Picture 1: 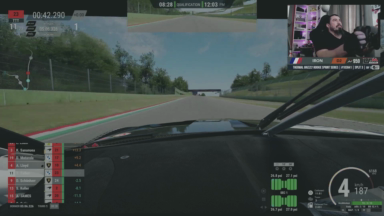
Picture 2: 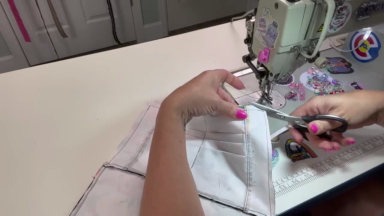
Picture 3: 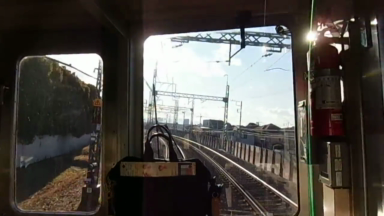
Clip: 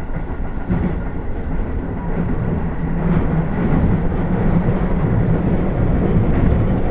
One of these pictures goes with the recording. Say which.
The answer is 3